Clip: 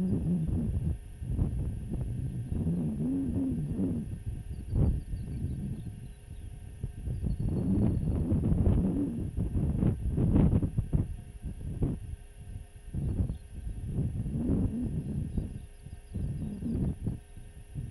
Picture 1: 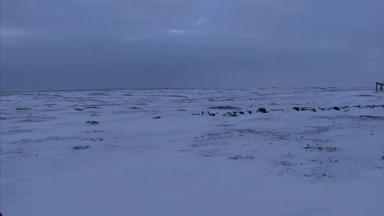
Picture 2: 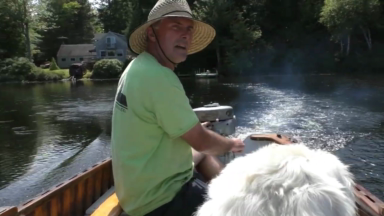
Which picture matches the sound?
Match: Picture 1